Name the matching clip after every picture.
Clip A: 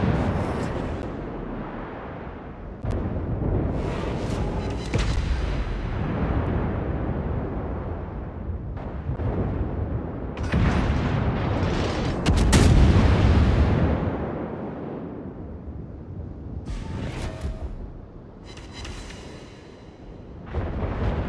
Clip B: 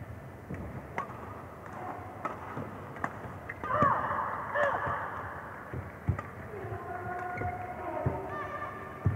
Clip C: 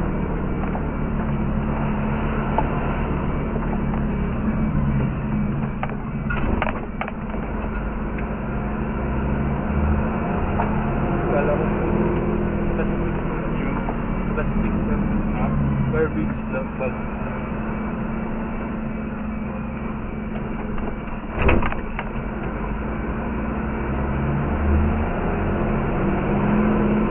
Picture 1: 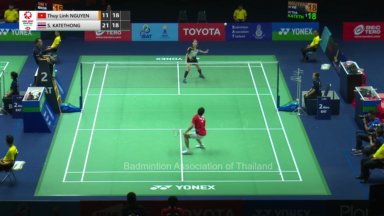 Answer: B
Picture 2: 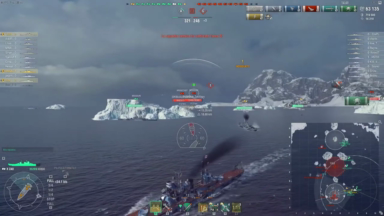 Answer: A